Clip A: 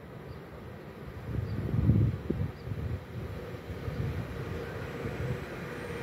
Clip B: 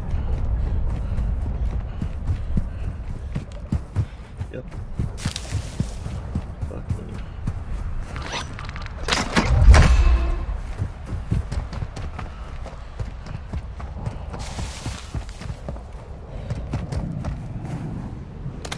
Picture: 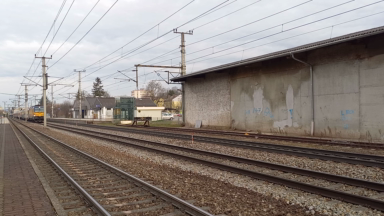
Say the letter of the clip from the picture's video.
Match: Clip A